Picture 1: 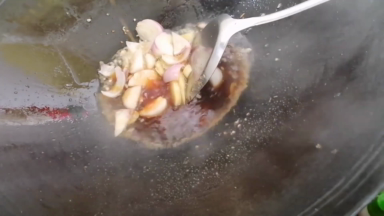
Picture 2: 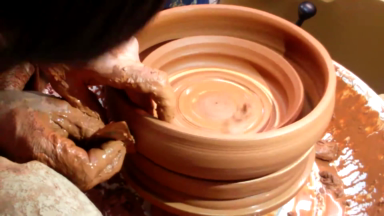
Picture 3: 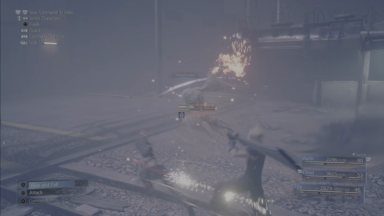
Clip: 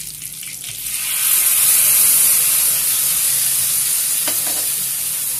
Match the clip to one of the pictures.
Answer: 1